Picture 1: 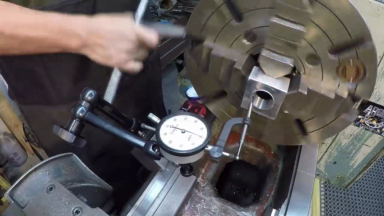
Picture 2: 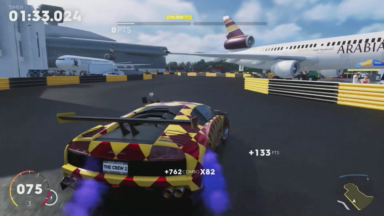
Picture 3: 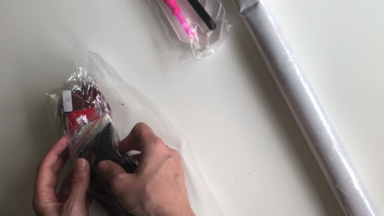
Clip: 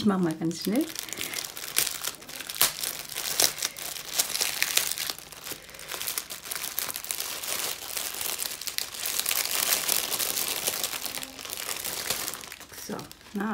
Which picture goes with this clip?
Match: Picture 3